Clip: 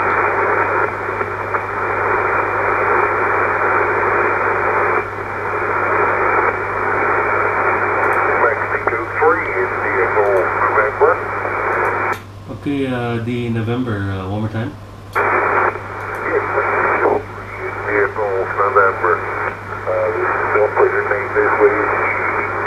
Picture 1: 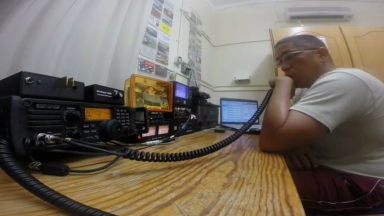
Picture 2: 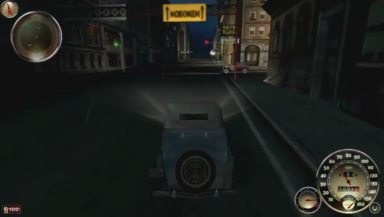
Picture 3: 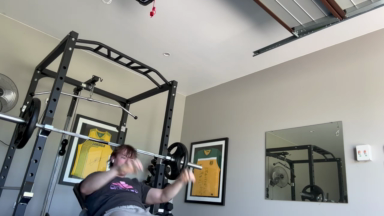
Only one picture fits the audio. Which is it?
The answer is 1